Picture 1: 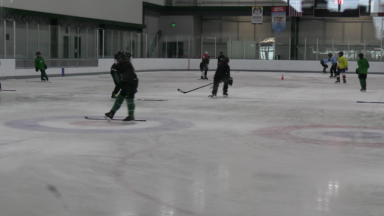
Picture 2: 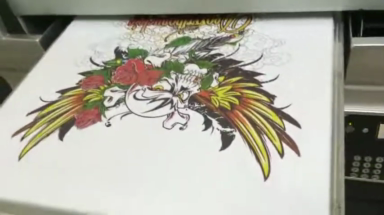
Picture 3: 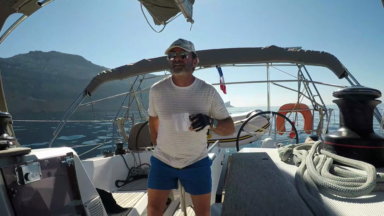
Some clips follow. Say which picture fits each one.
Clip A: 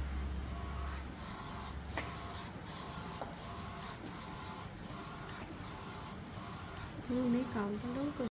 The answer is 2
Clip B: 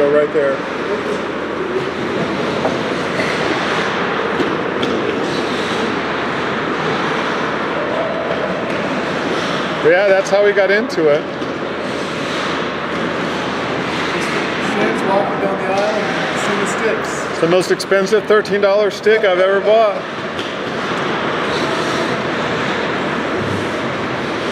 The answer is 1